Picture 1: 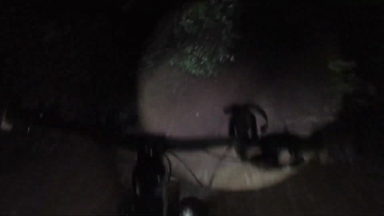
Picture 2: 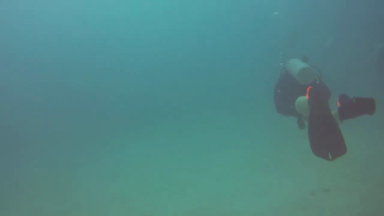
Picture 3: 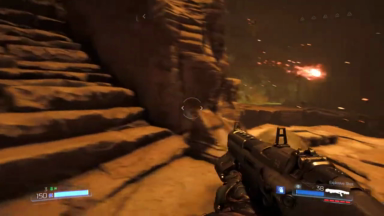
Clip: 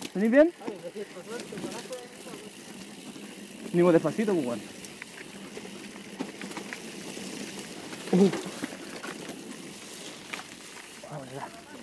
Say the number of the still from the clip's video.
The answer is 1